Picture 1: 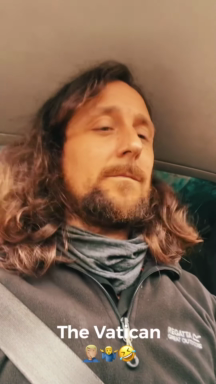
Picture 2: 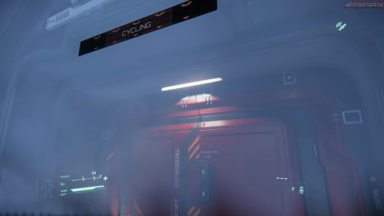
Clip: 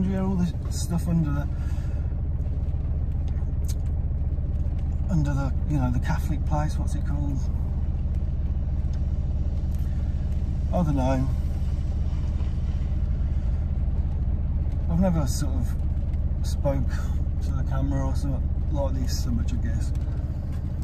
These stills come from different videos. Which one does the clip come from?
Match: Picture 1